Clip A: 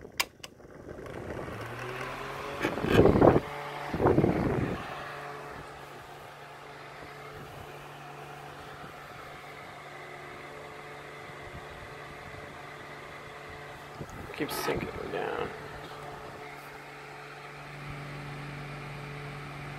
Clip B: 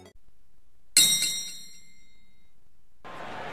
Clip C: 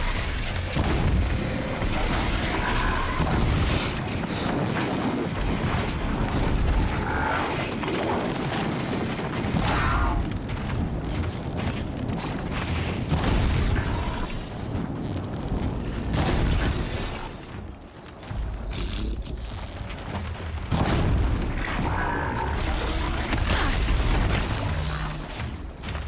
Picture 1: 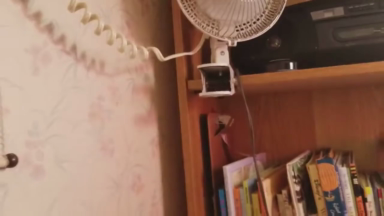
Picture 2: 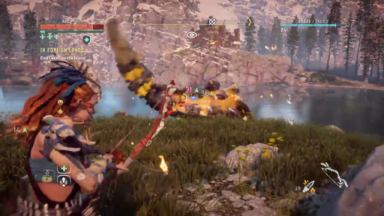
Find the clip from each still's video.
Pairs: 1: A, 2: C